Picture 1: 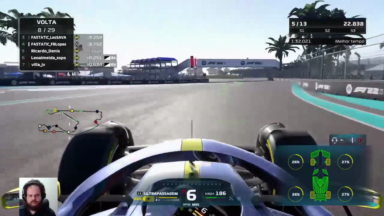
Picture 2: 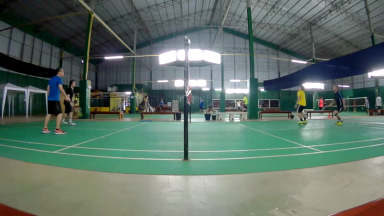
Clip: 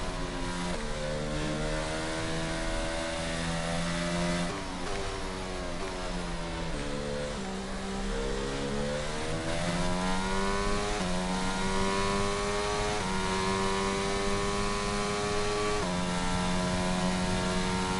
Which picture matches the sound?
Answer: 1